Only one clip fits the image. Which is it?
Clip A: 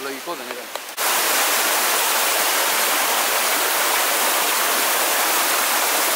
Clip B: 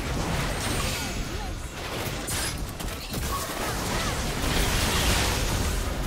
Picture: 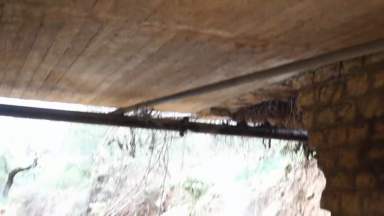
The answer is A